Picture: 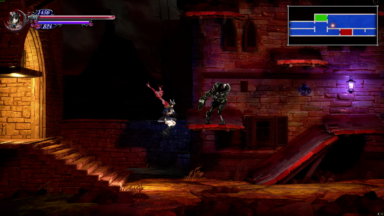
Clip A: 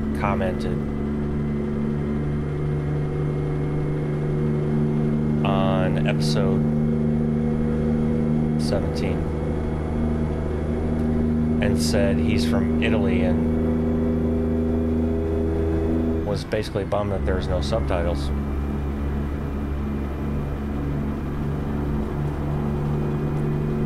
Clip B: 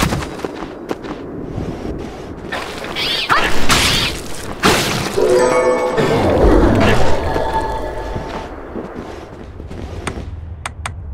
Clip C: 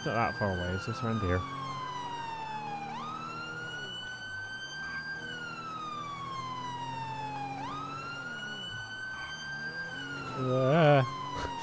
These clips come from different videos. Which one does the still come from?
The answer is B